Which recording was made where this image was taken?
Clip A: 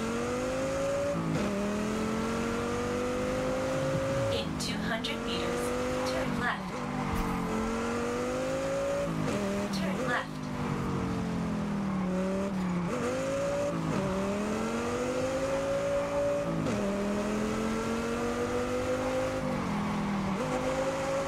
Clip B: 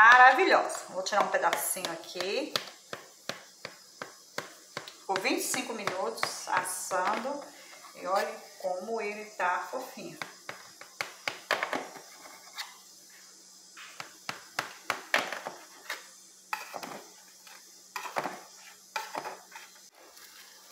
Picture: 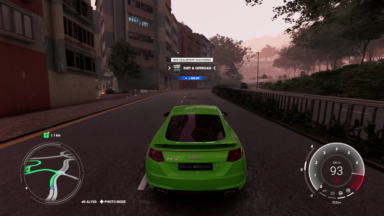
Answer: A